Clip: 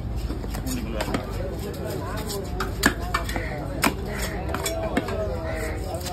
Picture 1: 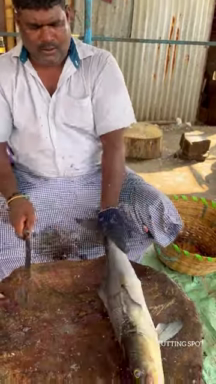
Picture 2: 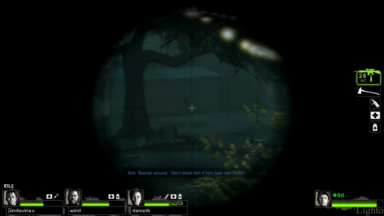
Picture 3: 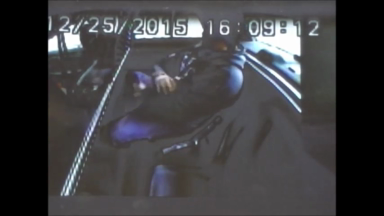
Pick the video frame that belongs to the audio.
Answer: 1